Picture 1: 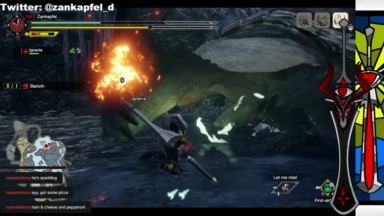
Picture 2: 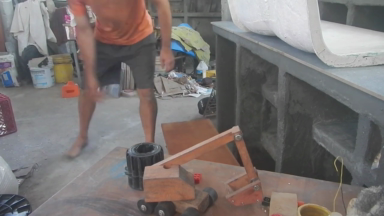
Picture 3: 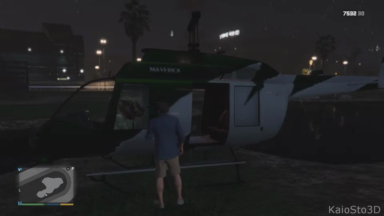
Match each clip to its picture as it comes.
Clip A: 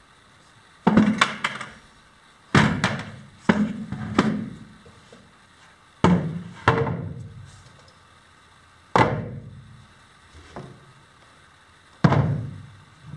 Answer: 2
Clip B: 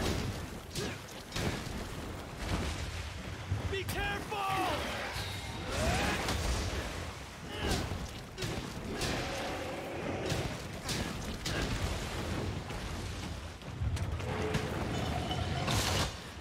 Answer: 1